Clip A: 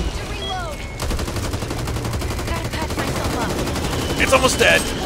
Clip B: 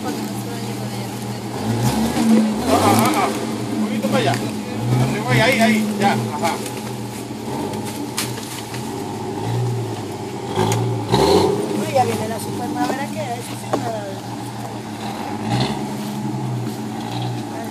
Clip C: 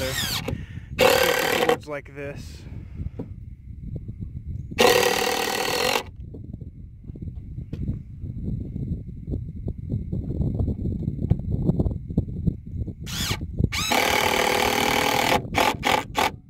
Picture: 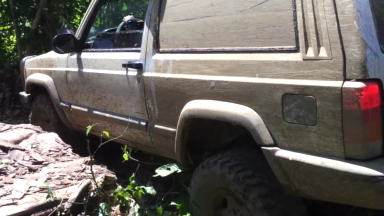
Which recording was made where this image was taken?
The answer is B